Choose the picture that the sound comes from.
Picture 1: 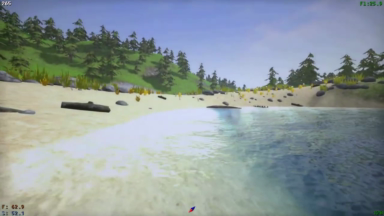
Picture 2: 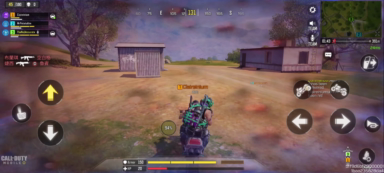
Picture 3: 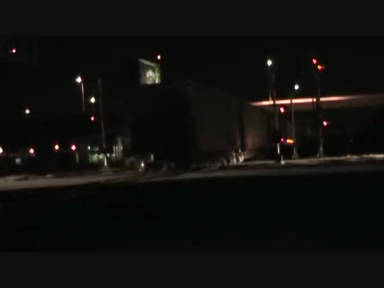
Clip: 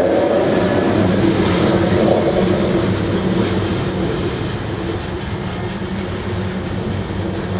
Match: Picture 3